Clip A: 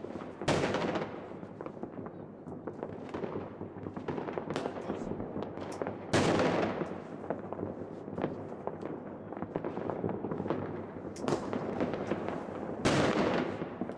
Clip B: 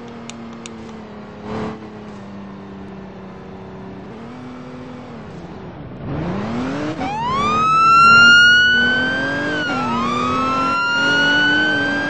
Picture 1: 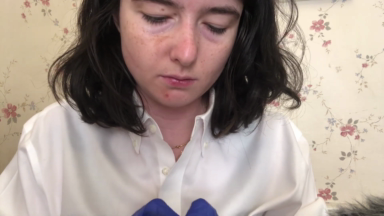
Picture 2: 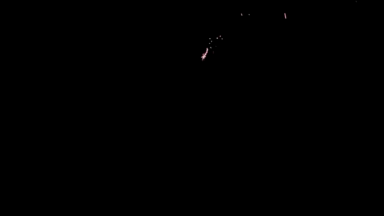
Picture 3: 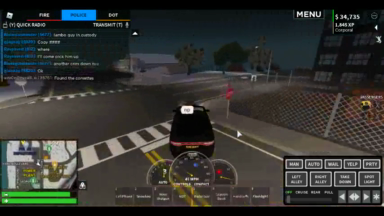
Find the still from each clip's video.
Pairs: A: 2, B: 3